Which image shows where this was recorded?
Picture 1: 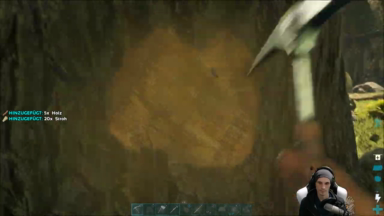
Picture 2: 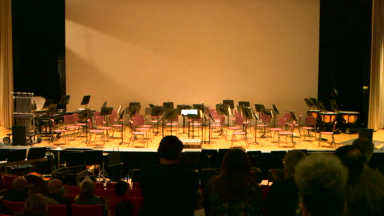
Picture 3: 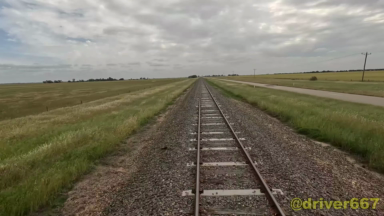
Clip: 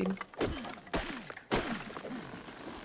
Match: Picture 1